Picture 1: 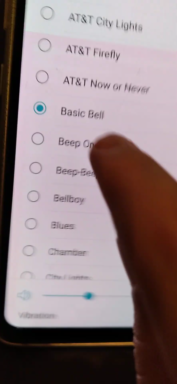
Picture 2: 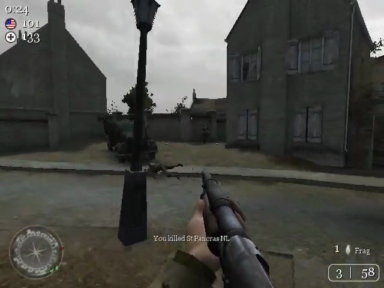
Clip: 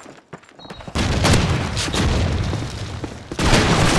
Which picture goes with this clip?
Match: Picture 2